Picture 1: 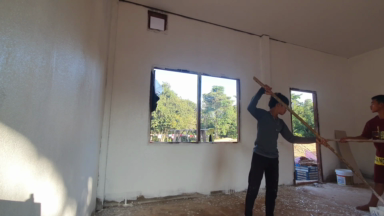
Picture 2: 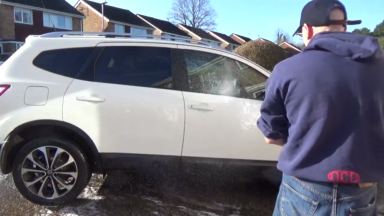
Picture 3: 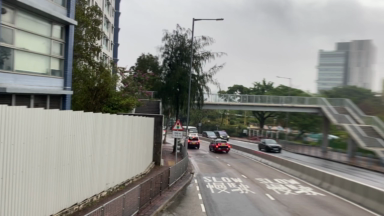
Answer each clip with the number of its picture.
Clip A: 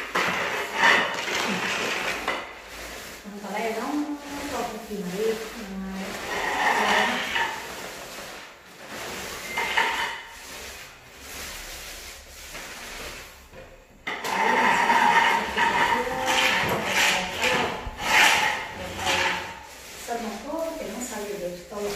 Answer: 1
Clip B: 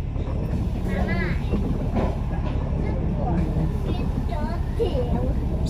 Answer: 3